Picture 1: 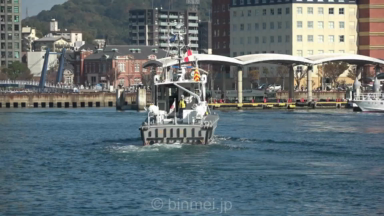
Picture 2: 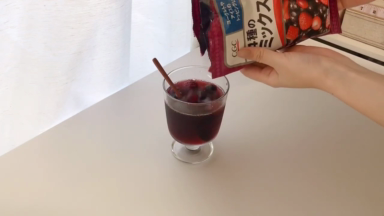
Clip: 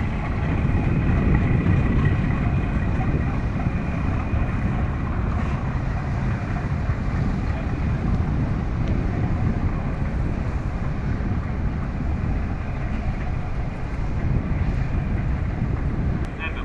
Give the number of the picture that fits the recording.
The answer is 1